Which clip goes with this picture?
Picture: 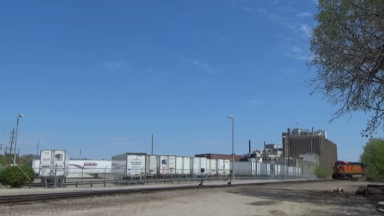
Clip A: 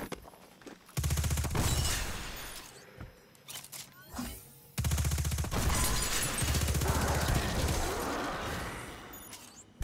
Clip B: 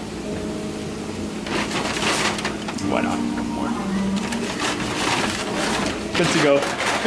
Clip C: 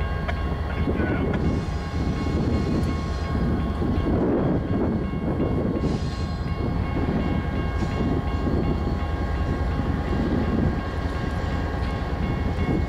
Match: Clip C